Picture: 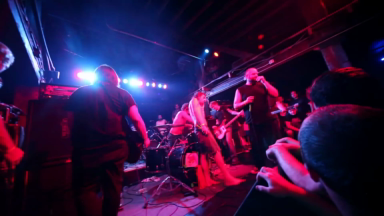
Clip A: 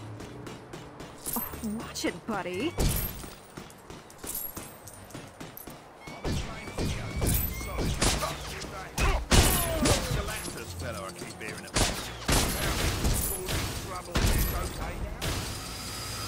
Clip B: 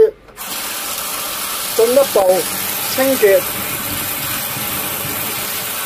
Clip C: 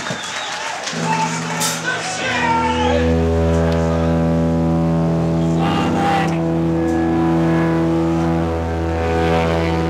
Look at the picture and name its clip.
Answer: C